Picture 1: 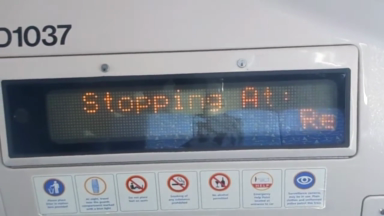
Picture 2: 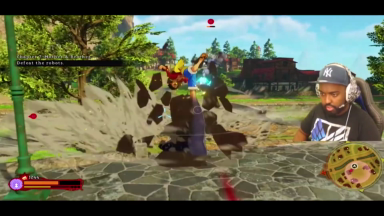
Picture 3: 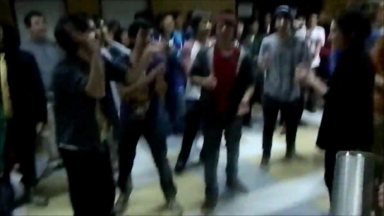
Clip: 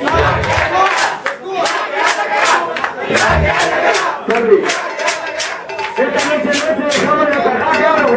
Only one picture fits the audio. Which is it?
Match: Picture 3